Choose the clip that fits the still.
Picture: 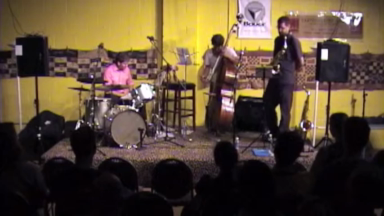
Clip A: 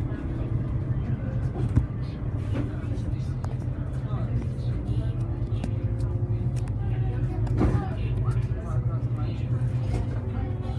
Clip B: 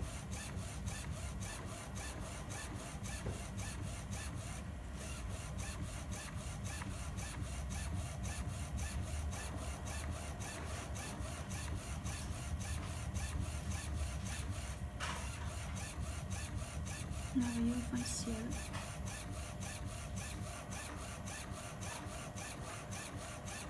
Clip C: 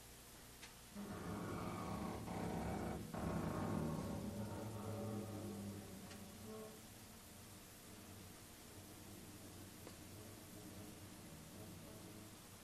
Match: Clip C